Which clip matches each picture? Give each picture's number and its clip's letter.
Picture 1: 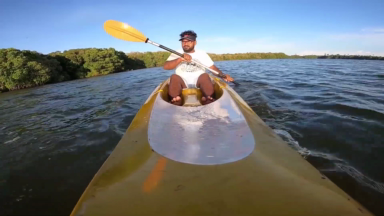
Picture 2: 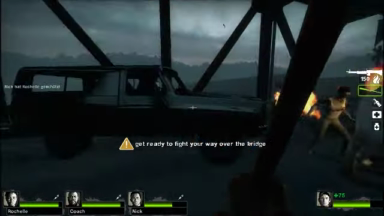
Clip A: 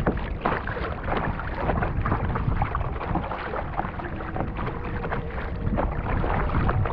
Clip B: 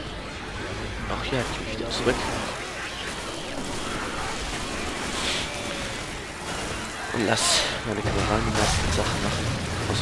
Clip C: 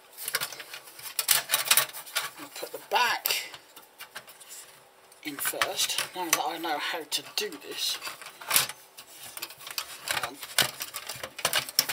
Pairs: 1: A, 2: B